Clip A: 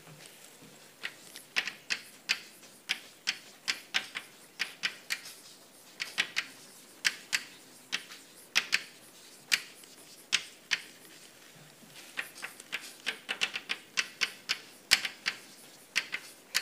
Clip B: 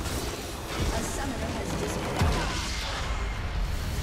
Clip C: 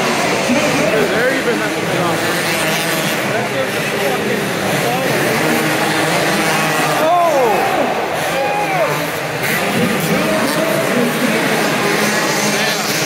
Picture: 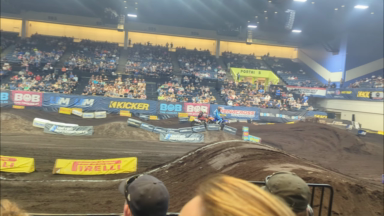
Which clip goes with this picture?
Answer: C